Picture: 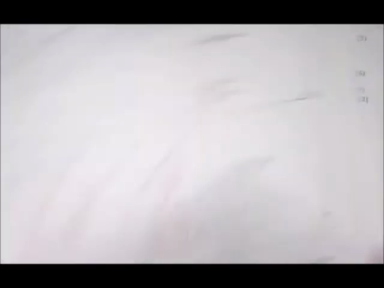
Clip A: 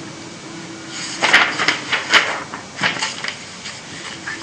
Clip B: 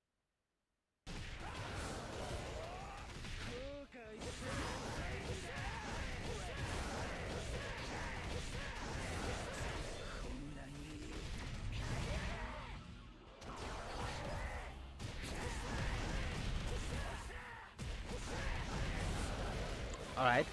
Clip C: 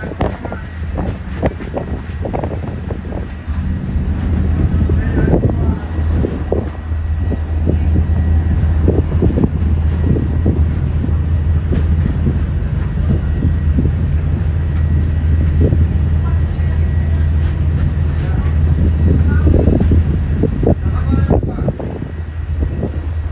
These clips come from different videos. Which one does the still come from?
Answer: A